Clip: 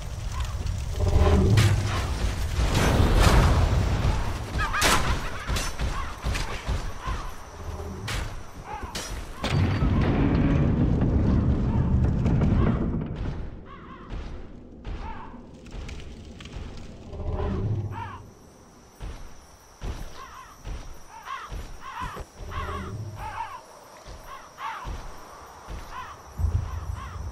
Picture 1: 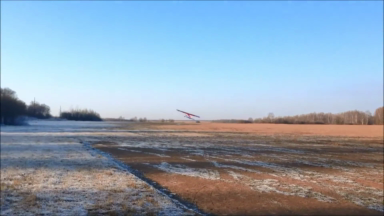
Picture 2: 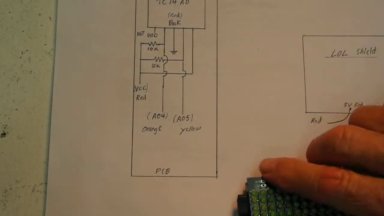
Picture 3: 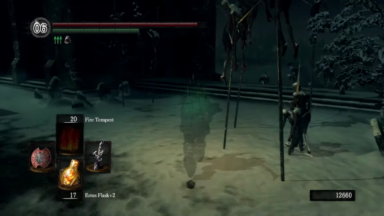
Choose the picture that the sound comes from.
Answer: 3